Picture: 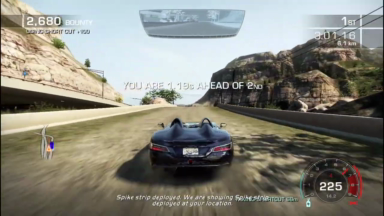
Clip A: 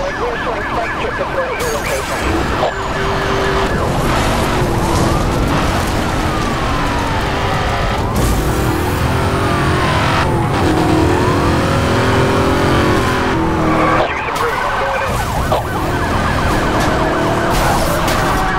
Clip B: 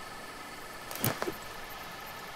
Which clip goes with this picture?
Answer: A